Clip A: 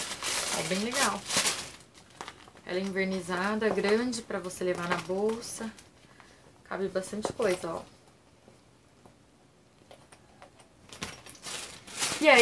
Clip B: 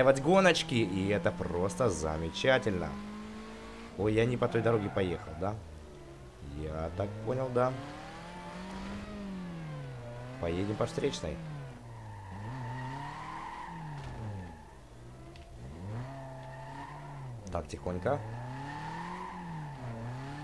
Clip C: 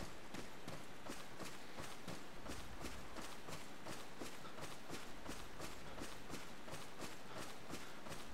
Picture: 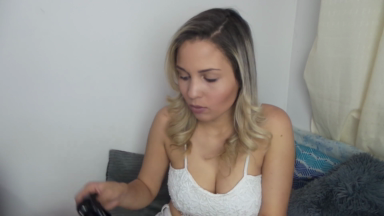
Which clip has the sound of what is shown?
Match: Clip A